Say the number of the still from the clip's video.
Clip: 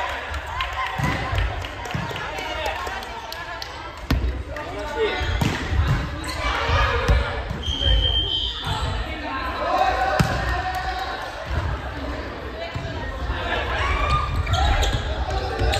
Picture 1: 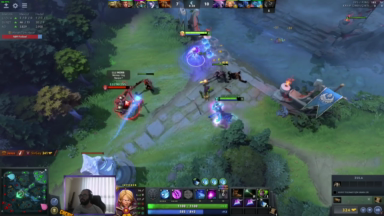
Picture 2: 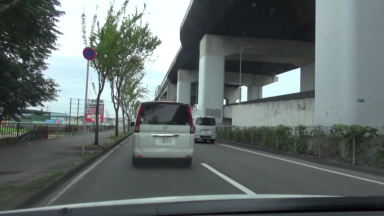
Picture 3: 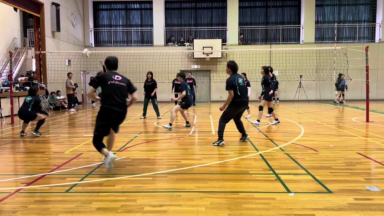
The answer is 3